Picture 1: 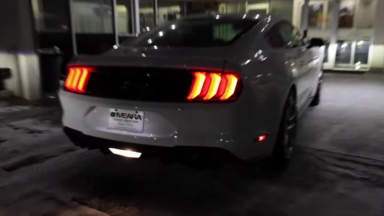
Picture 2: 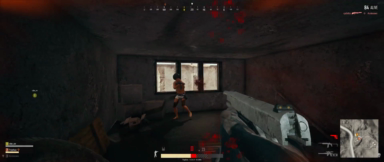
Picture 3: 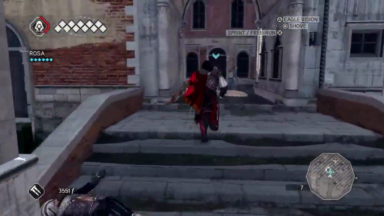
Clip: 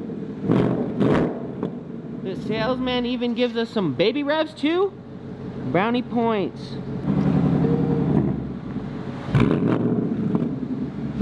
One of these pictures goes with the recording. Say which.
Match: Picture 1